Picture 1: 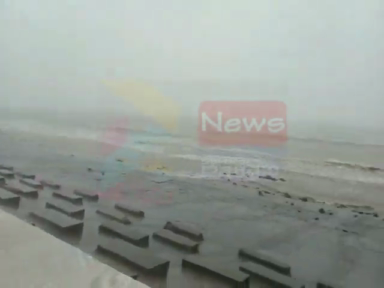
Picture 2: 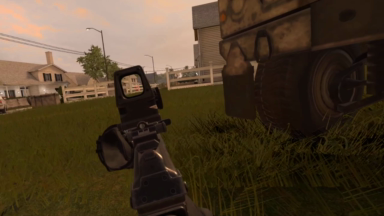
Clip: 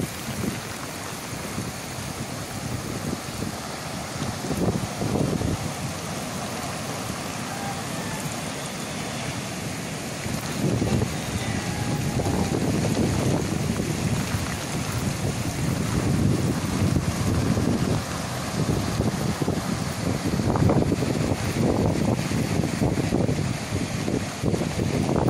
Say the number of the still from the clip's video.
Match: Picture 1